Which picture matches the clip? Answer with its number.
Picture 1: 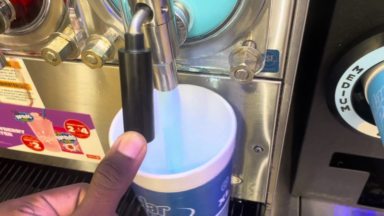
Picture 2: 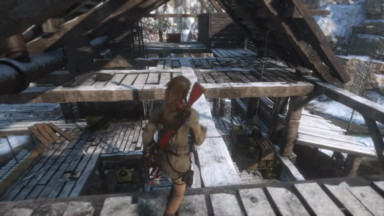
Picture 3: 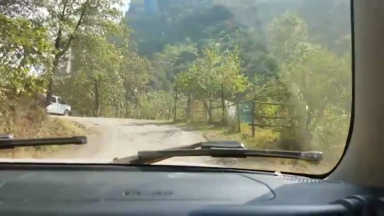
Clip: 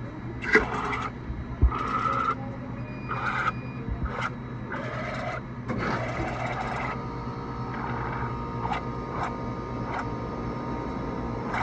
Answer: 1